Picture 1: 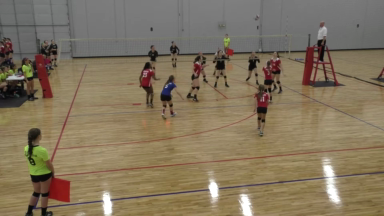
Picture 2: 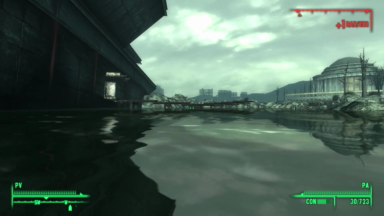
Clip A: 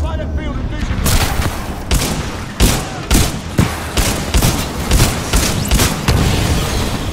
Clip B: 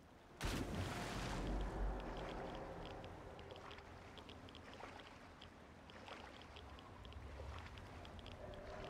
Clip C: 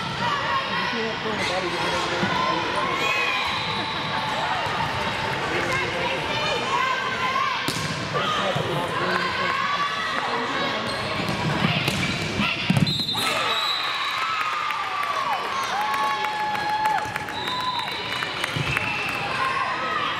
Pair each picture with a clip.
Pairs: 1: C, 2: B